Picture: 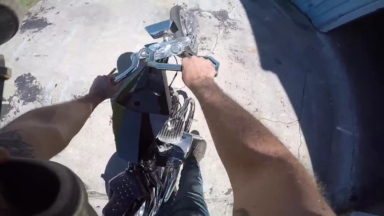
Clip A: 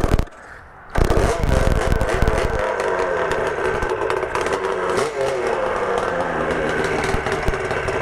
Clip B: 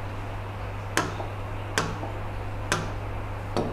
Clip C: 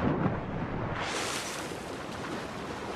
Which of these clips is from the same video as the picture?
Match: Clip A